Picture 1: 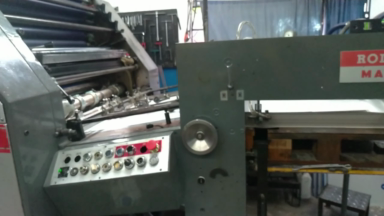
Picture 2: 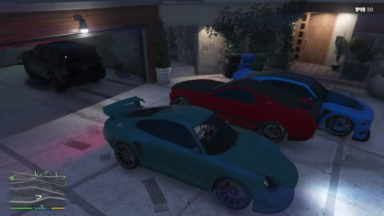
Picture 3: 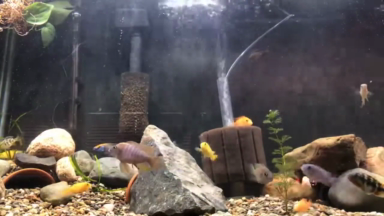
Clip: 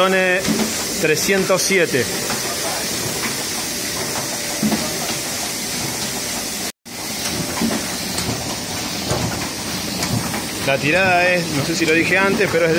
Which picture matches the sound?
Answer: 1